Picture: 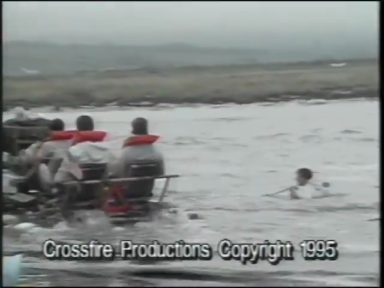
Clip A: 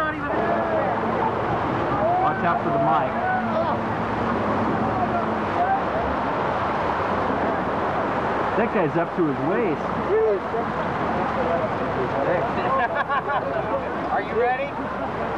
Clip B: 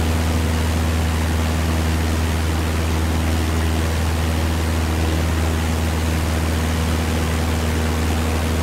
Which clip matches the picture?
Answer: A